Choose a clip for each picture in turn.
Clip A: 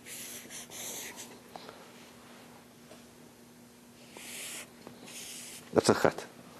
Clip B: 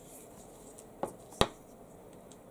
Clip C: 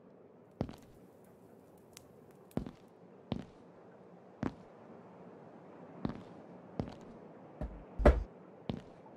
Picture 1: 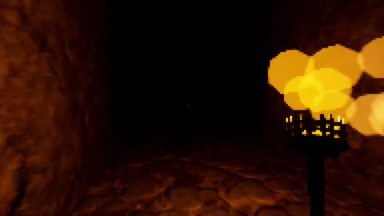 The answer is C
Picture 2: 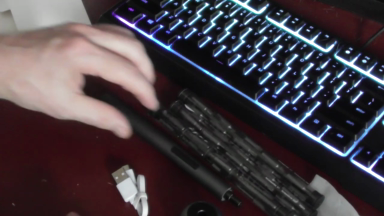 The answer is B